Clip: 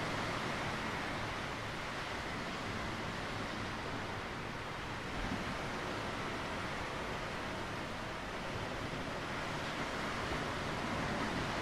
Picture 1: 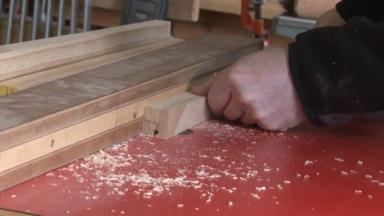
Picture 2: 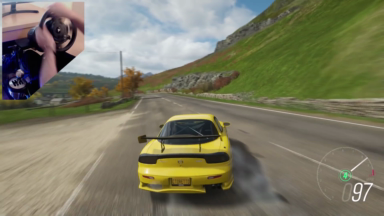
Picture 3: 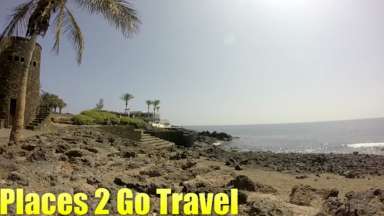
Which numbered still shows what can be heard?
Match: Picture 3